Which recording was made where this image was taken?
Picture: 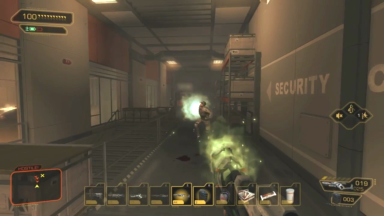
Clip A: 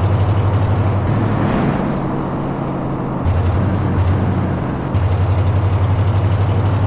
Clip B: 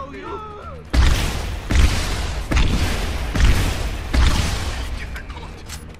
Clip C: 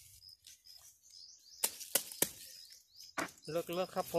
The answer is B